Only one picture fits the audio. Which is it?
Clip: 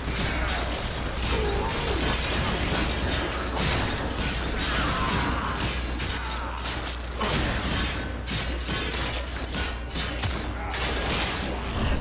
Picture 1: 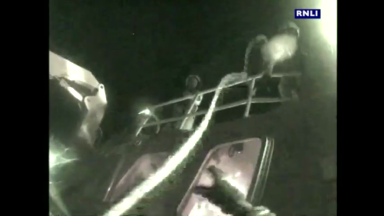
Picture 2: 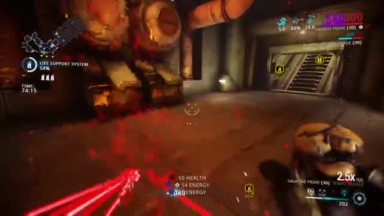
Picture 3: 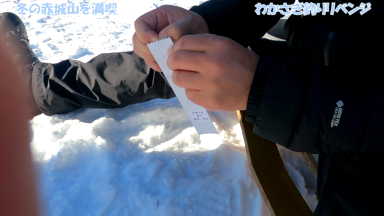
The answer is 2